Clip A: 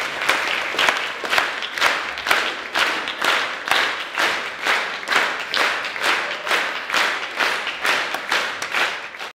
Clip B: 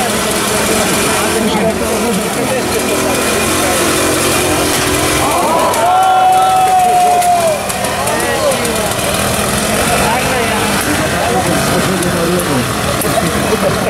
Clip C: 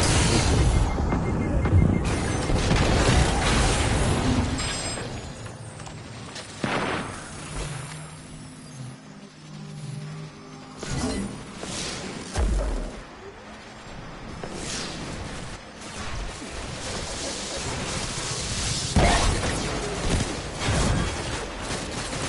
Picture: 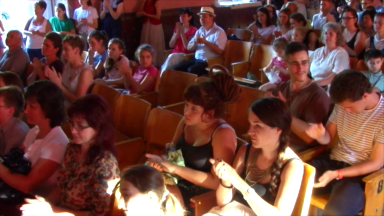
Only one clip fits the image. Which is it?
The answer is A